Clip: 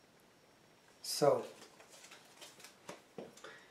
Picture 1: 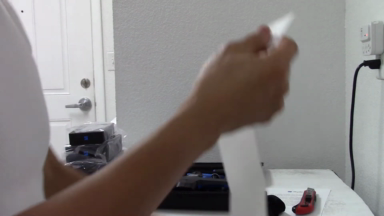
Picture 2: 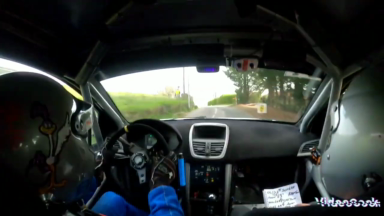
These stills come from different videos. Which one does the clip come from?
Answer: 1